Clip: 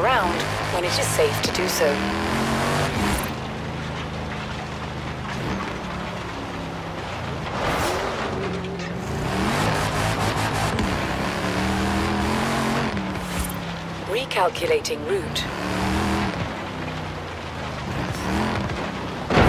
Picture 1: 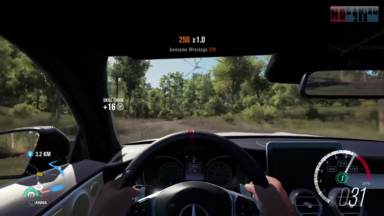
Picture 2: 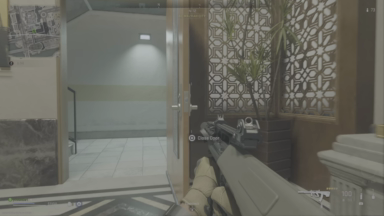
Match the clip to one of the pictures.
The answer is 1